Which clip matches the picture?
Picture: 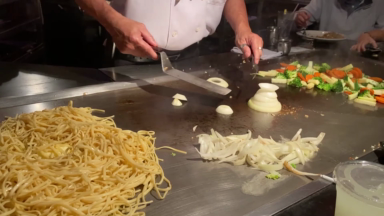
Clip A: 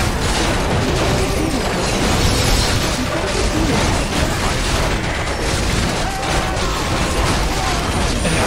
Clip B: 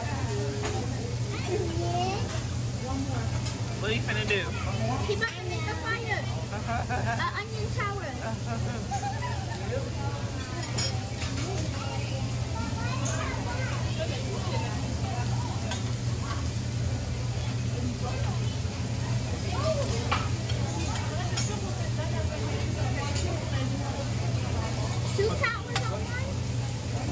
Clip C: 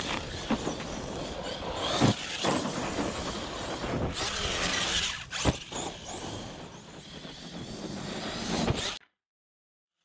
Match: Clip B